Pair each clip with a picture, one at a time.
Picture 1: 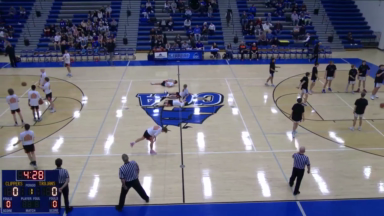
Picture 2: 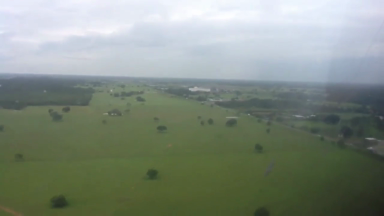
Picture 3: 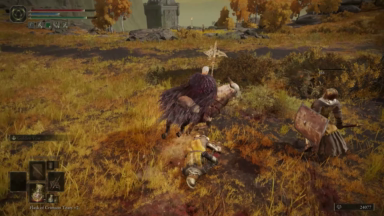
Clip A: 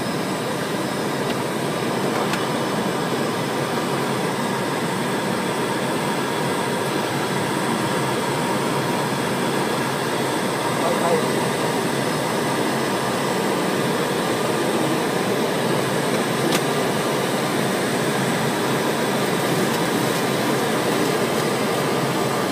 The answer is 2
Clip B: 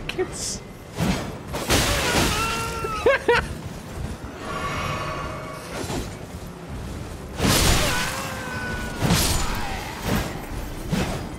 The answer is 3